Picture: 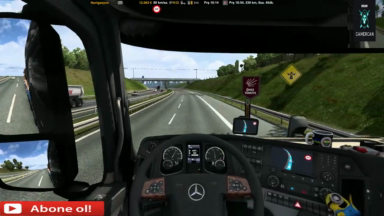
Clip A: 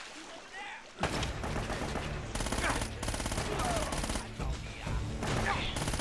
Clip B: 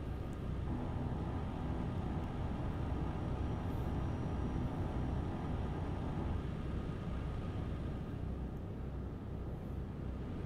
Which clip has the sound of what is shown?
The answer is B